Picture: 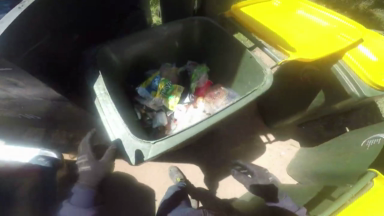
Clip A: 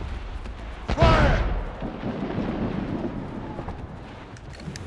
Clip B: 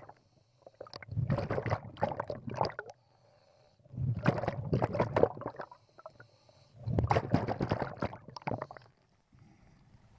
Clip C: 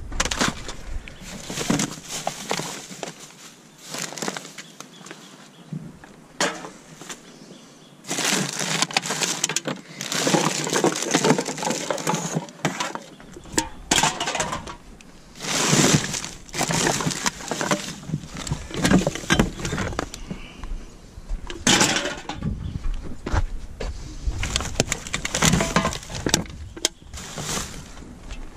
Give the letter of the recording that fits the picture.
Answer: C